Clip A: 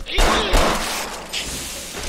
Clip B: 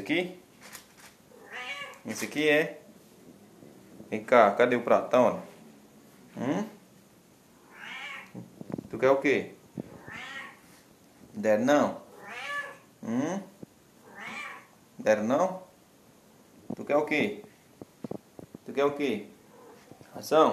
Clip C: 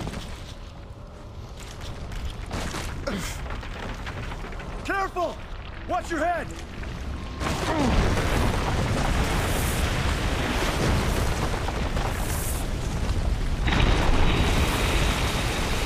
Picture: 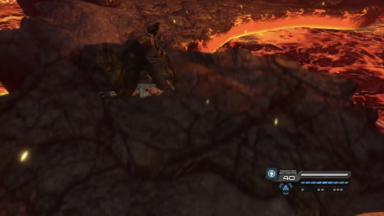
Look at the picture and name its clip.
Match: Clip C